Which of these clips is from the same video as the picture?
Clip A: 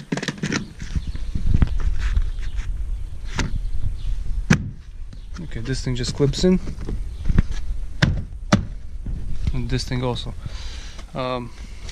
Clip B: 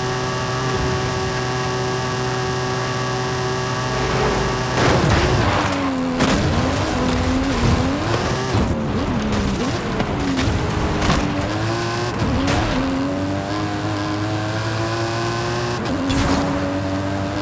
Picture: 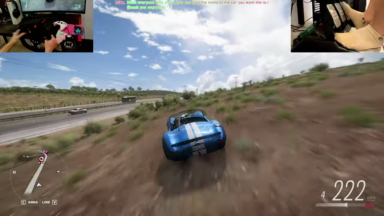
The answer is B